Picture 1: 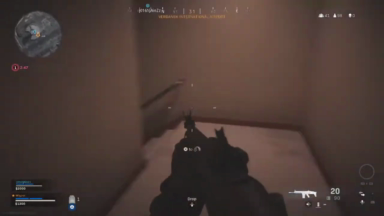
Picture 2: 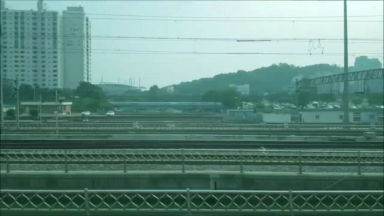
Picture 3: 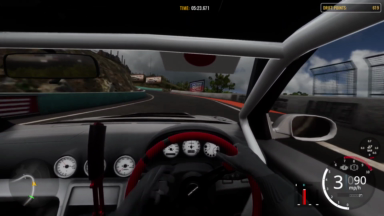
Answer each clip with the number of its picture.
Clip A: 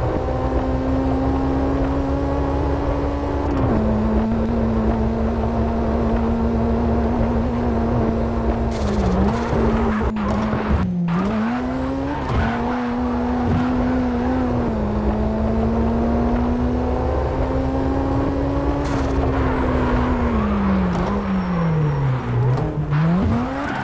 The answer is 3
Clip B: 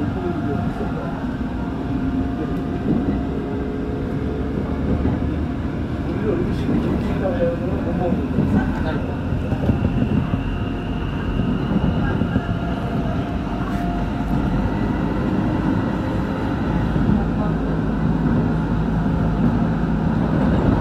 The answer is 2